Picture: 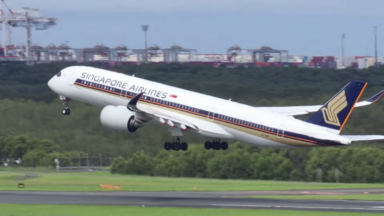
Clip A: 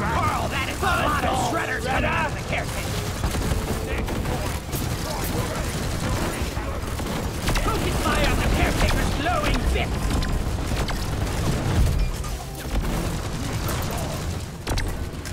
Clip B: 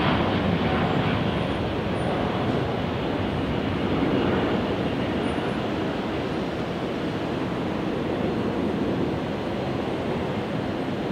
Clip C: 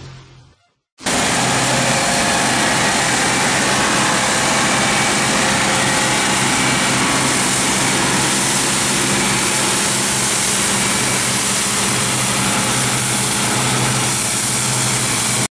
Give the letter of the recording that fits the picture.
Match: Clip B